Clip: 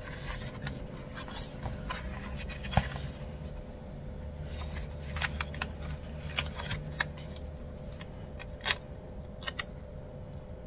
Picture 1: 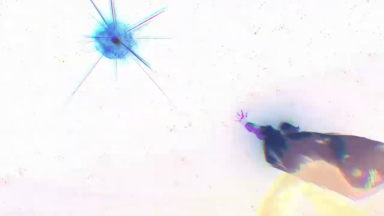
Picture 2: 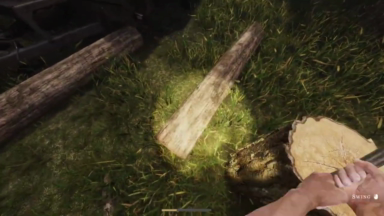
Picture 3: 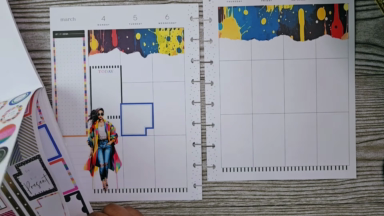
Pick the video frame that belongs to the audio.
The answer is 3